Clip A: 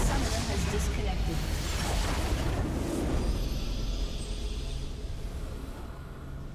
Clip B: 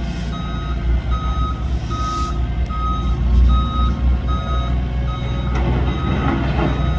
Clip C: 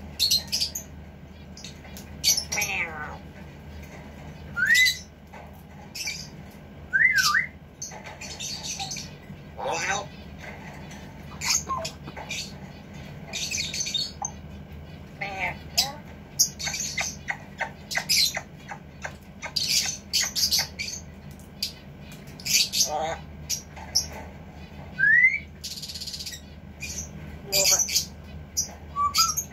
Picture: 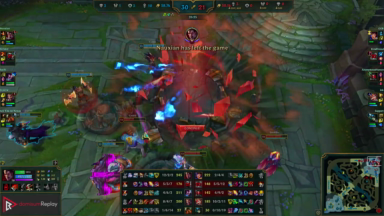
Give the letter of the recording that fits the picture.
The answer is A